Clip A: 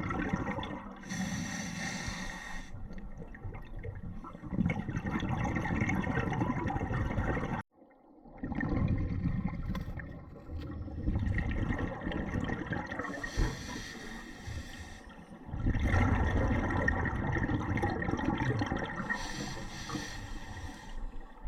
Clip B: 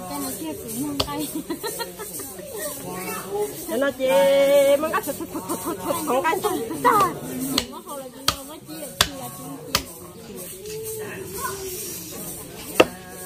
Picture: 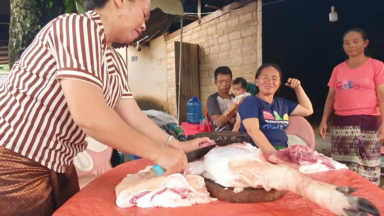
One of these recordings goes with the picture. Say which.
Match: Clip B